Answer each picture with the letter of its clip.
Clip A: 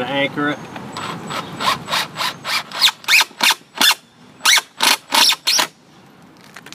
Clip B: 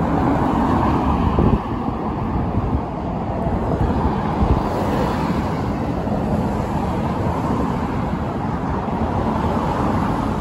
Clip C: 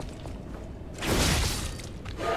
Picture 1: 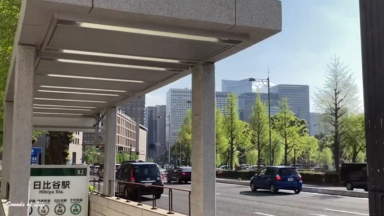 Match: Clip B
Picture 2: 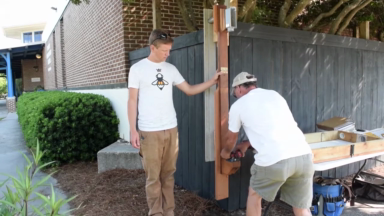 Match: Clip A